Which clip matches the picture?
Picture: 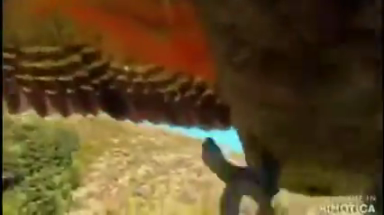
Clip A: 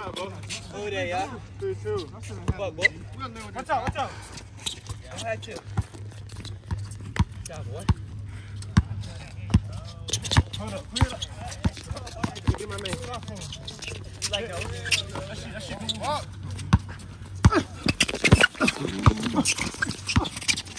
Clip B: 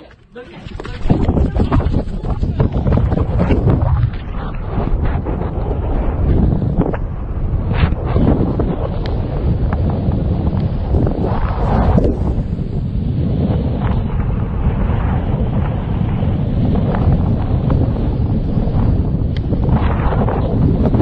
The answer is B